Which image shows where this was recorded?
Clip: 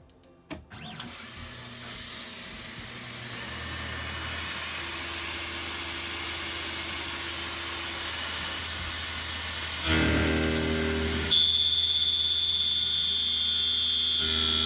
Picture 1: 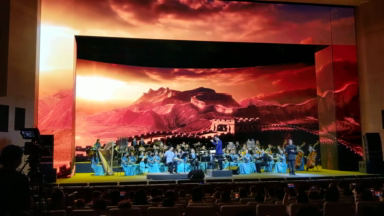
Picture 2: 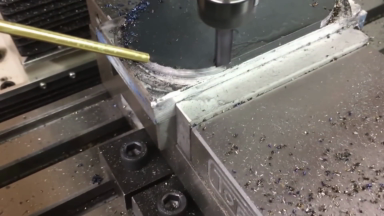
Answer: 2